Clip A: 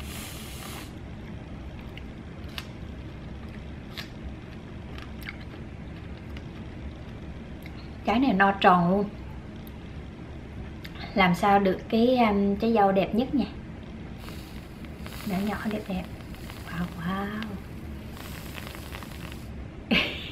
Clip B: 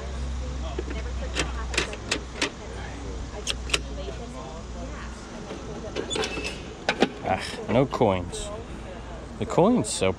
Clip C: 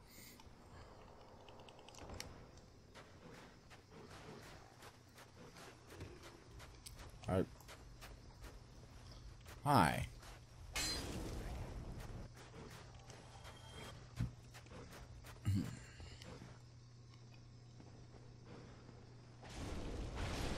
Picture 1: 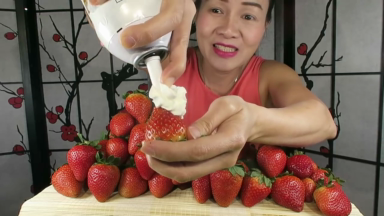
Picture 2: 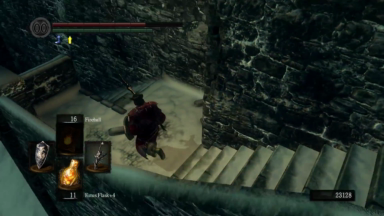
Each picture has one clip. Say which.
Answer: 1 A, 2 C